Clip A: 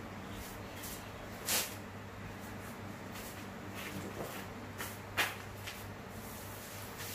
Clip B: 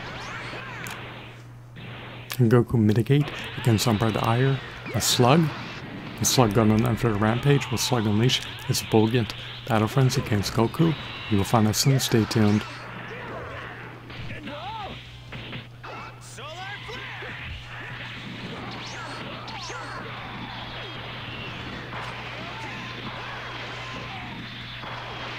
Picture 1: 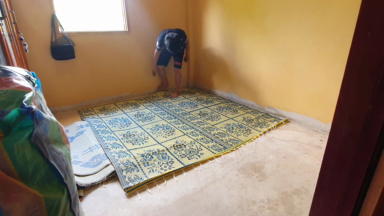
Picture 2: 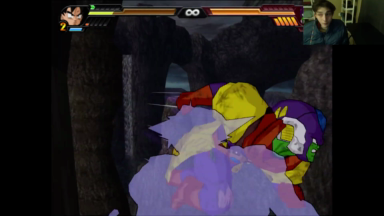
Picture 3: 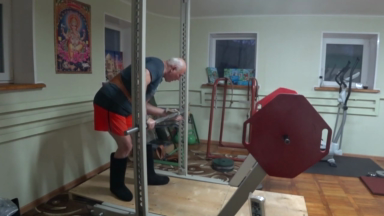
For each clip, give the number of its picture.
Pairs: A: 1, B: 2